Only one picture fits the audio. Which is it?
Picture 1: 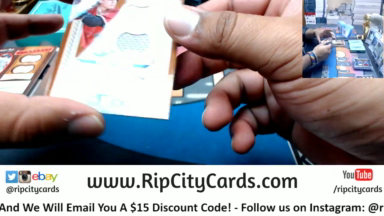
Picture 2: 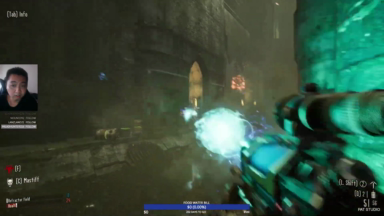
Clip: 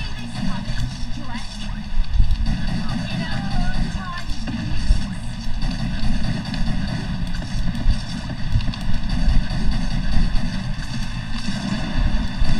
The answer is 2